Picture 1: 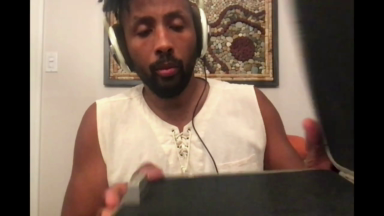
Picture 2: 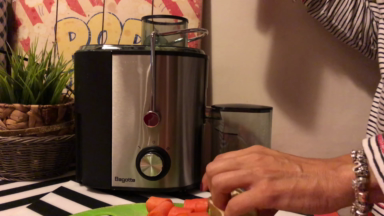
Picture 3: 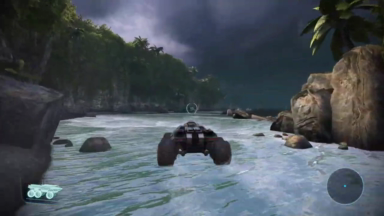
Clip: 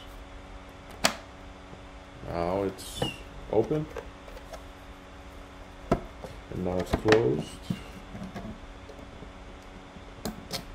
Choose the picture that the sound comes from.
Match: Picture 1